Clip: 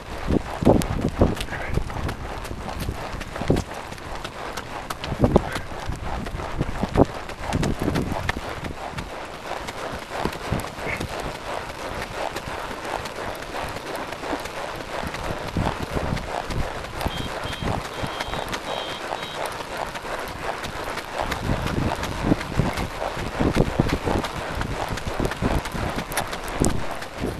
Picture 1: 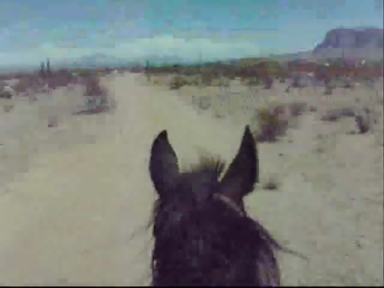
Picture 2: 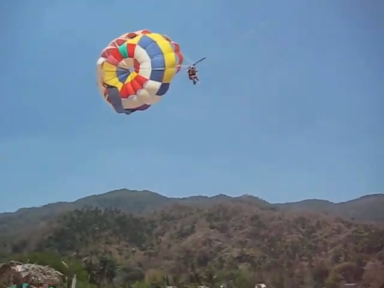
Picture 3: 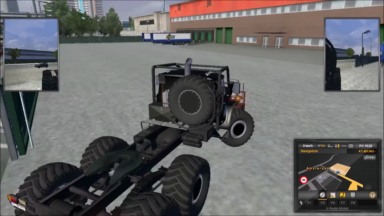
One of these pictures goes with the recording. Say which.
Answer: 1